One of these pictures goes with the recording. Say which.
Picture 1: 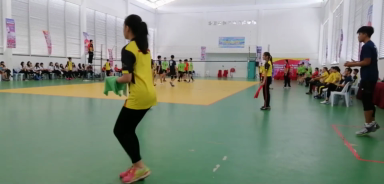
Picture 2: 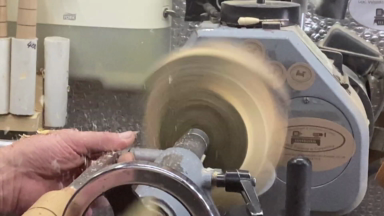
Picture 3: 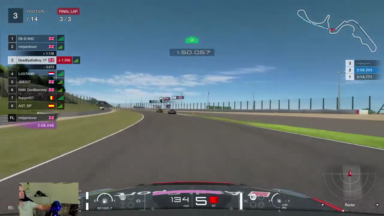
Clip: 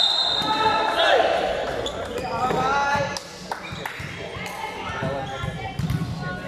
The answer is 1